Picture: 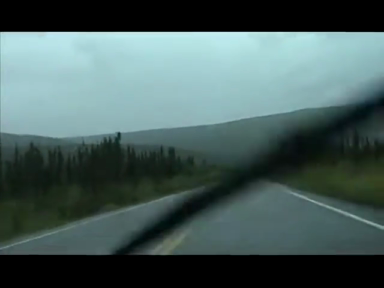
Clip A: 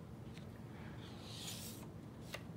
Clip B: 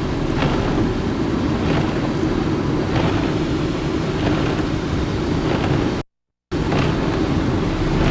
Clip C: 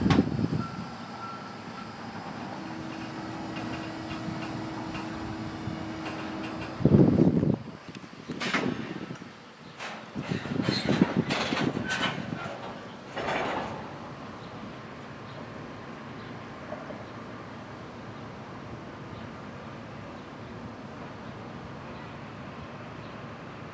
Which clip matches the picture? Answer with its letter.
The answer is B